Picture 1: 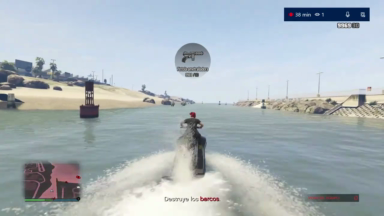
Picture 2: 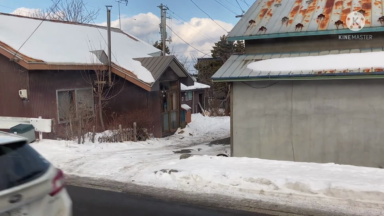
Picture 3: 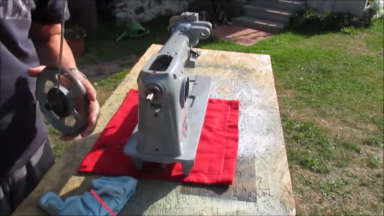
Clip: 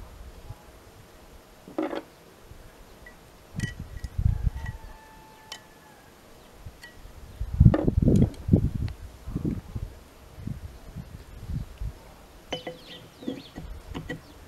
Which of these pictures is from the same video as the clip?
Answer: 3